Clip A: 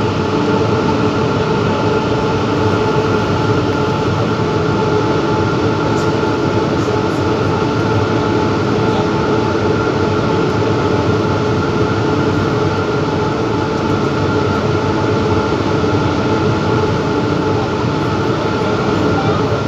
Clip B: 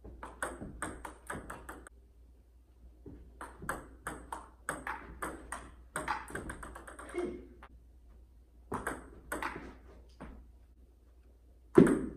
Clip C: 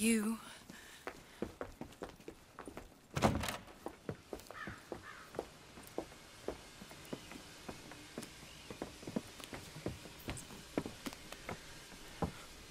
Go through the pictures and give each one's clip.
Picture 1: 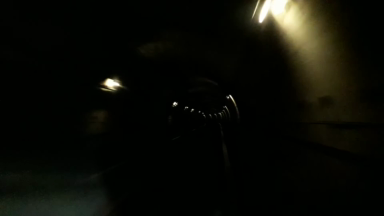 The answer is A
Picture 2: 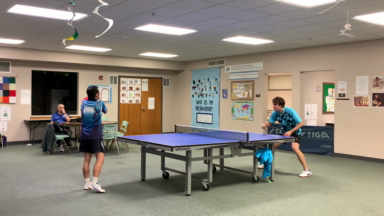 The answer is B